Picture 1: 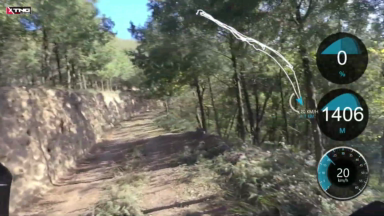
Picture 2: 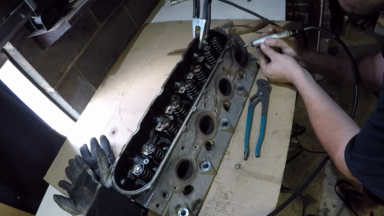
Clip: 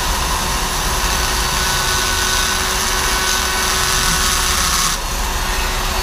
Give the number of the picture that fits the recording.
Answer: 2